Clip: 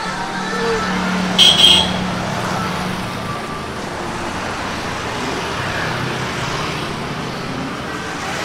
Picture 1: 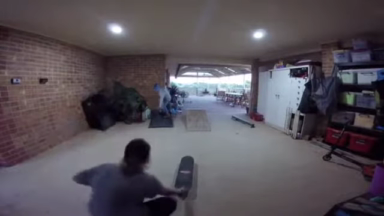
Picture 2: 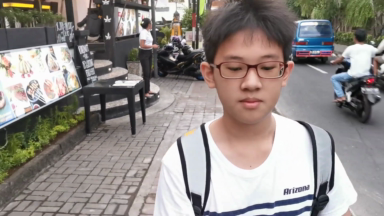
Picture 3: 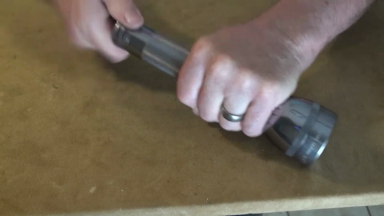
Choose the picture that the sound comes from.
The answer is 2